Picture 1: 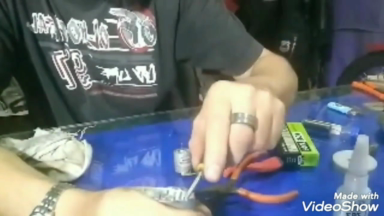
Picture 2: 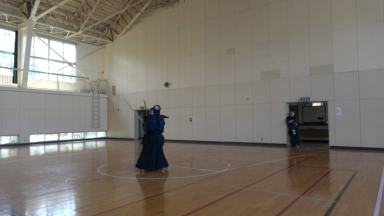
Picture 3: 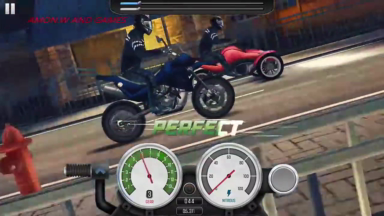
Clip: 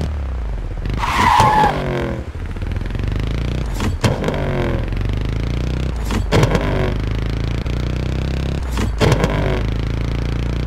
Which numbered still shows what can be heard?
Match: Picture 3